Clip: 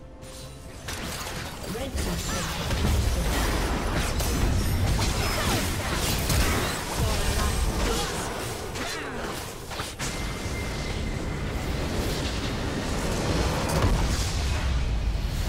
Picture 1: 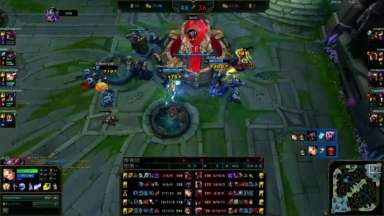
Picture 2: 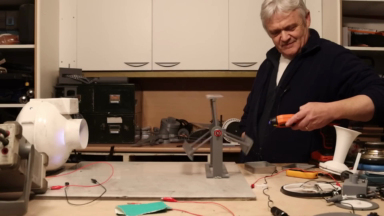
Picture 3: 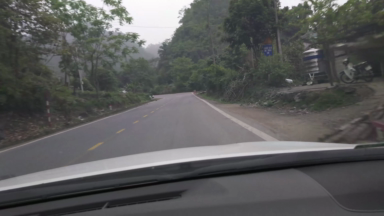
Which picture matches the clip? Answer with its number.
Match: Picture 1